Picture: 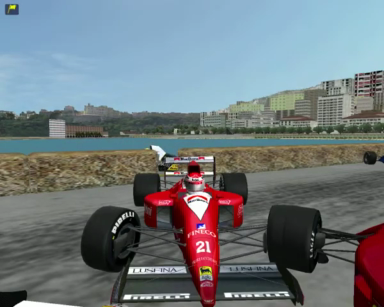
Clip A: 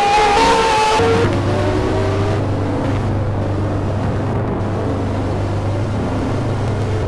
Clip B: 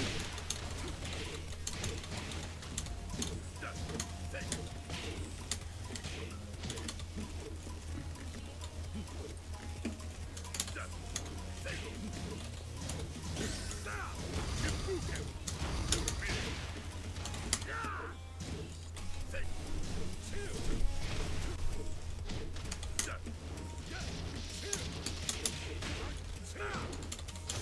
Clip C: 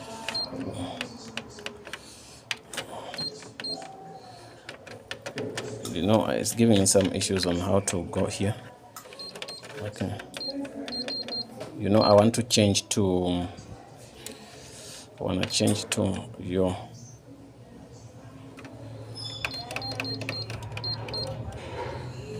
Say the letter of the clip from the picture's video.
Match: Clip A